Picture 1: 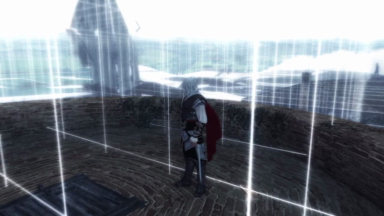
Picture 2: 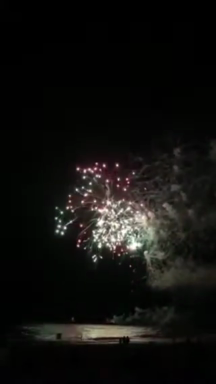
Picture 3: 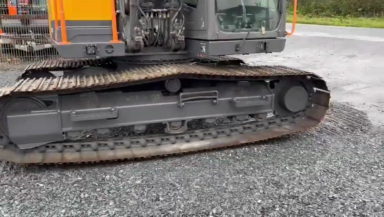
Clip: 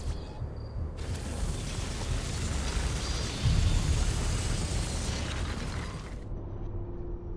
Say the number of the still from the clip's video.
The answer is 1